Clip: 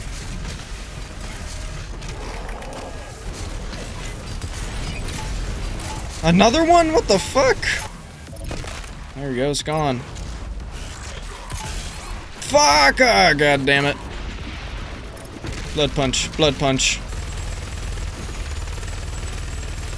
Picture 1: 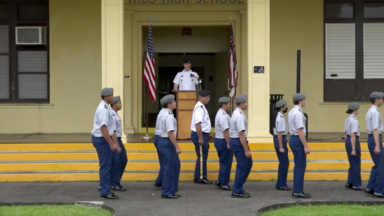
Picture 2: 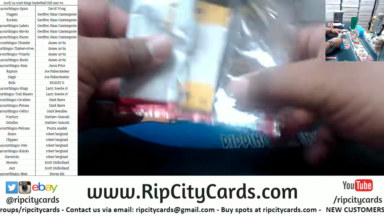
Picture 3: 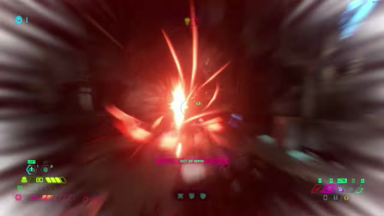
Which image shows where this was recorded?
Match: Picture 3